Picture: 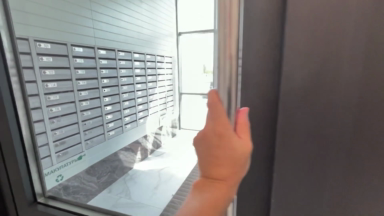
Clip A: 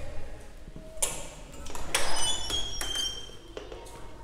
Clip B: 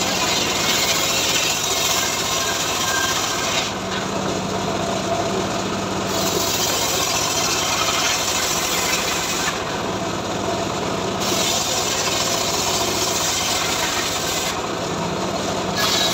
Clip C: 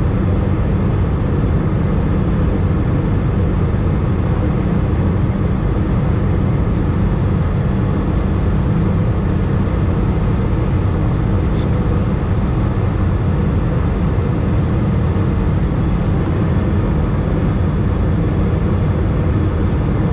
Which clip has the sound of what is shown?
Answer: A